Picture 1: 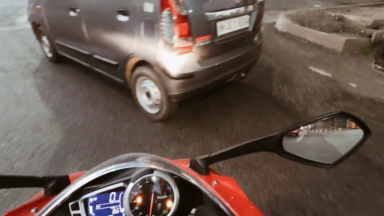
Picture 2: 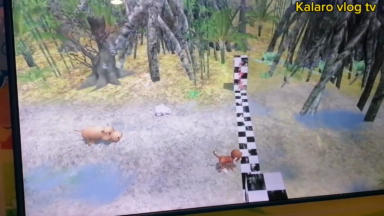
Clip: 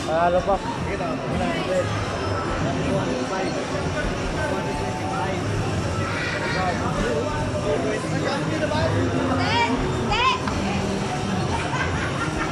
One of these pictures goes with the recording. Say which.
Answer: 2